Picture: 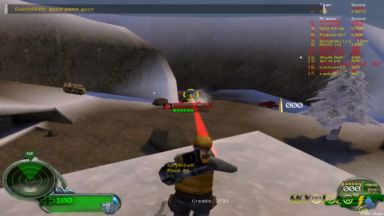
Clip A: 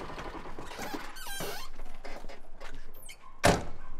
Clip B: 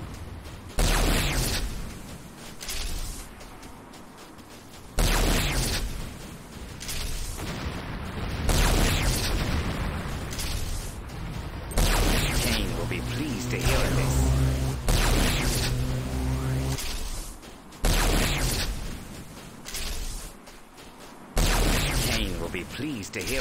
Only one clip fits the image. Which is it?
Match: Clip B